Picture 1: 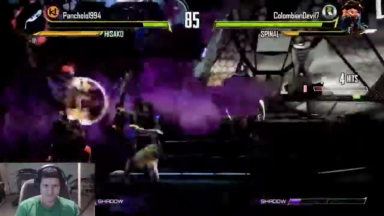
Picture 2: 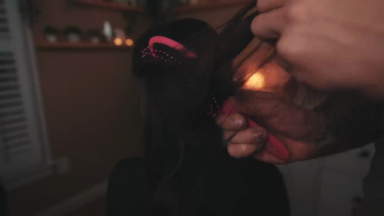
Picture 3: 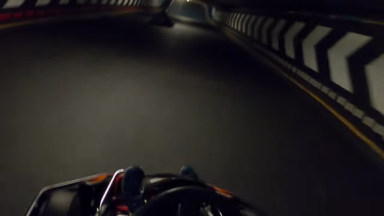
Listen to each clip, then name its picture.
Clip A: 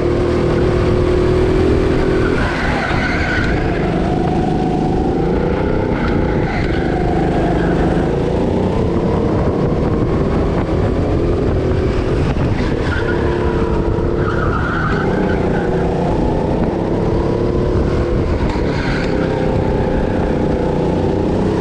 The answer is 3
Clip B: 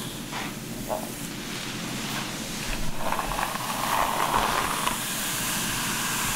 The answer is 2